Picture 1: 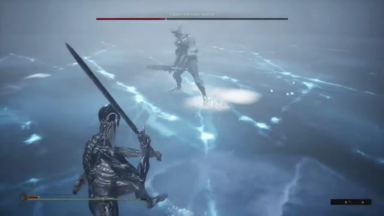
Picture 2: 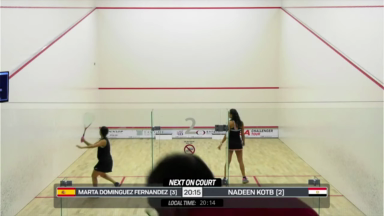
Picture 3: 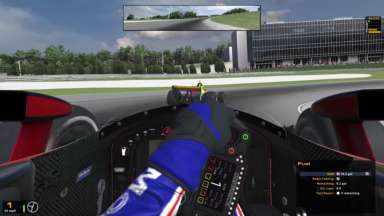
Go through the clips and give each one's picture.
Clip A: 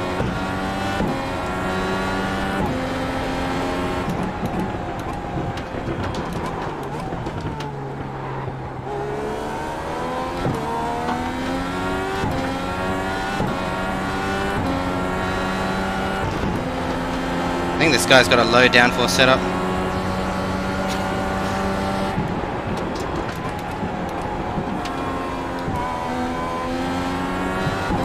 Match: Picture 3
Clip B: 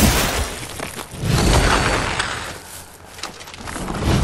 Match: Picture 1